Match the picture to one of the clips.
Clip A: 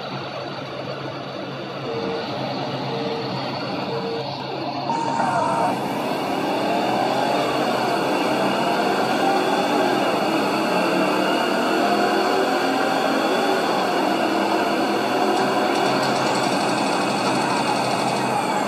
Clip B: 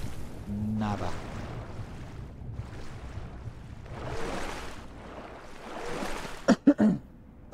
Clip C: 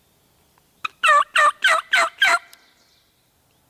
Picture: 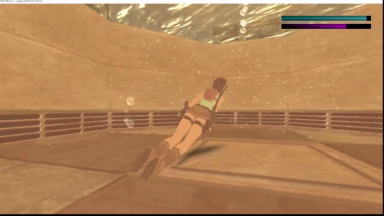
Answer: B